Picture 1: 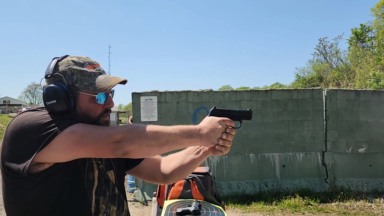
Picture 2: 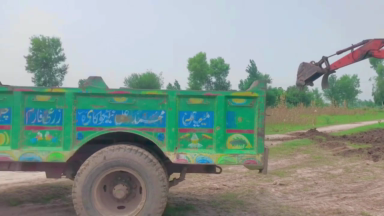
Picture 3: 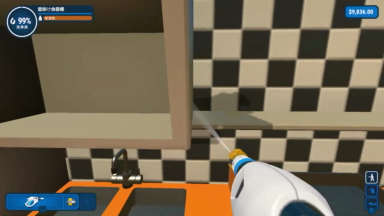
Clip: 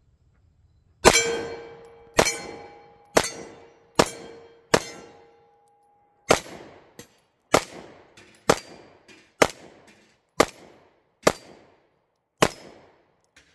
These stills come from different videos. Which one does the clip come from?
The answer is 1